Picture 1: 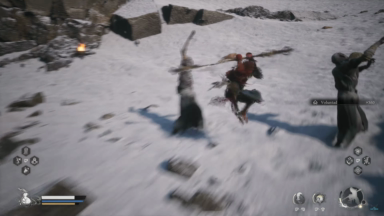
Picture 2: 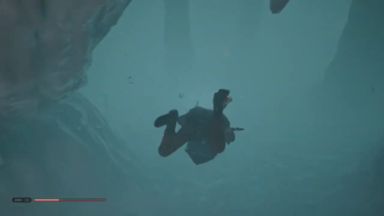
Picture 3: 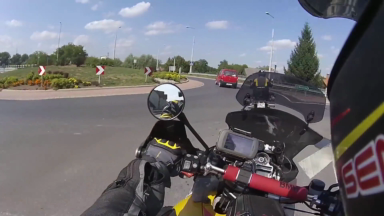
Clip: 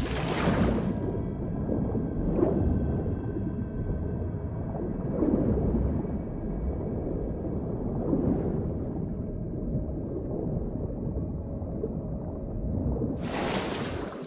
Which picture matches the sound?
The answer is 2